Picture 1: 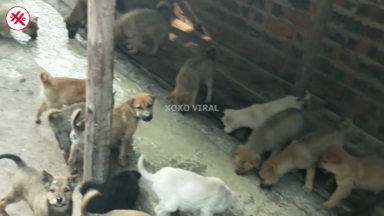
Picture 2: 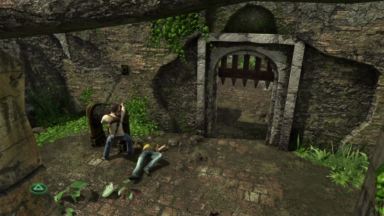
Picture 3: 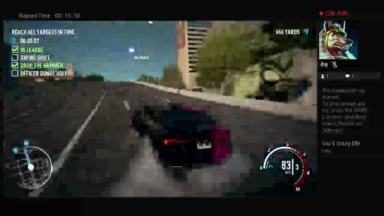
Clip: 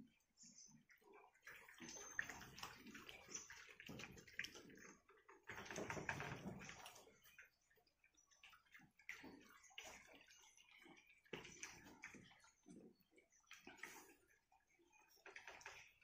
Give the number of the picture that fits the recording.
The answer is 1